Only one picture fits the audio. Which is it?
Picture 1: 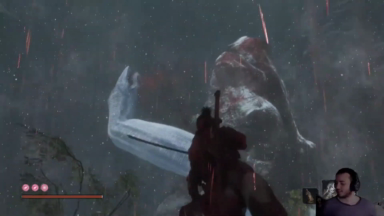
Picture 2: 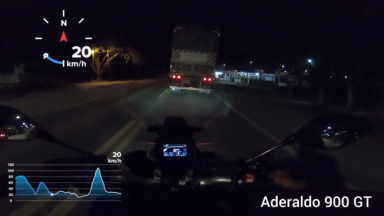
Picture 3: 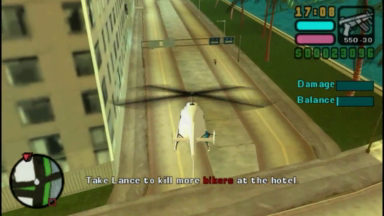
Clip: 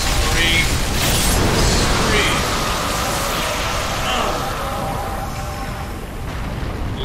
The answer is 1